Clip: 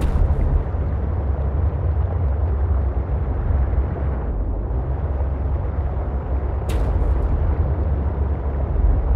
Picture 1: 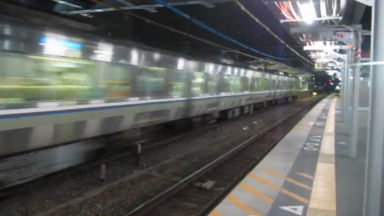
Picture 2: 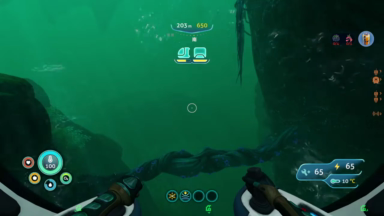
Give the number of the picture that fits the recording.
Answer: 2